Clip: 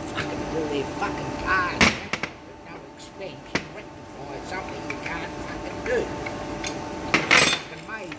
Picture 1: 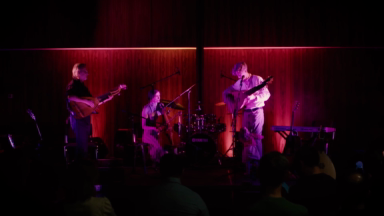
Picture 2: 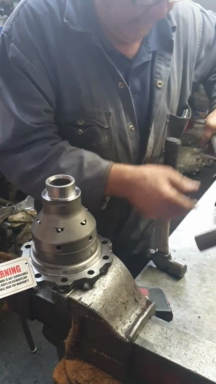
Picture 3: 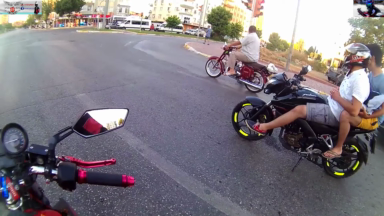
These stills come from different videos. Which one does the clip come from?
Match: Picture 2